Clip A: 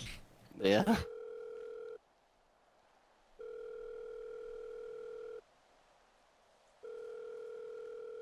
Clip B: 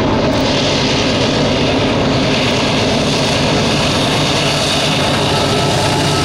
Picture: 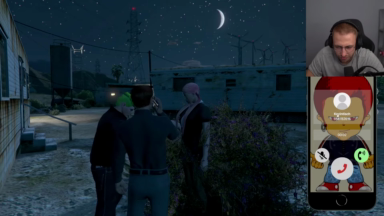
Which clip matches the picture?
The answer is A